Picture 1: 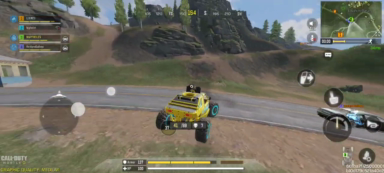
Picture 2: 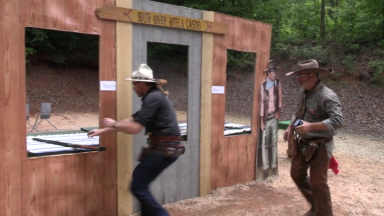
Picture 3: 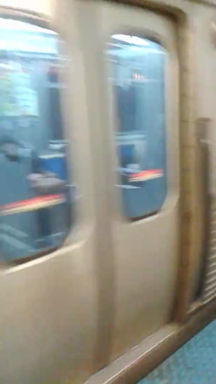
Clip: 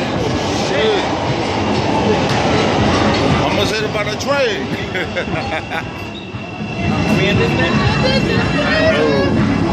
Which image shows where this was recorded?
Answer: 3